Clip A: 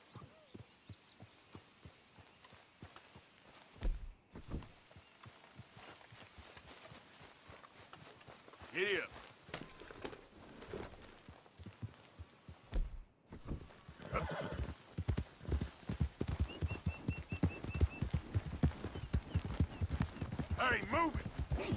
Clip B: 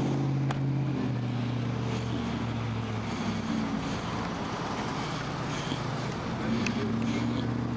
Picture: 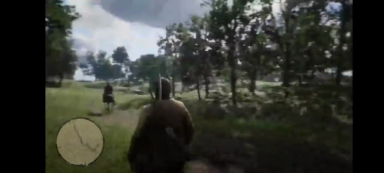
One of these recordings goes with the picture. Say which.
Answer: A